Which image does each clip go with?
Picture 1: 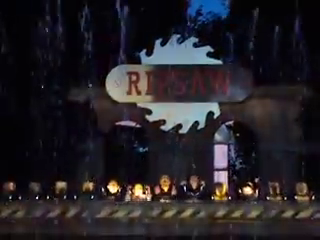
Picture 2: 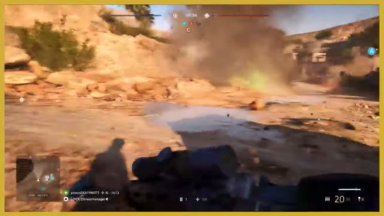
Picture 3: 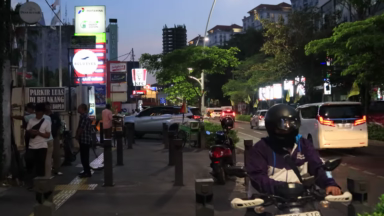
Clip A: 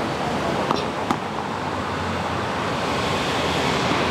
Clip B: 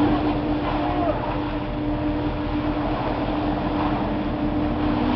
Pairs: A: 3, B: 1